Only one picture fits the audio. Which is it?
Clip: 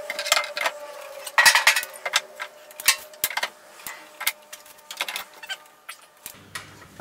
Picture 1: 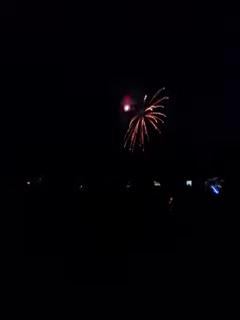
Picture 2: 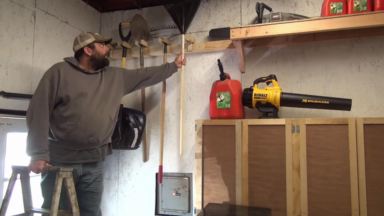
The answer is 2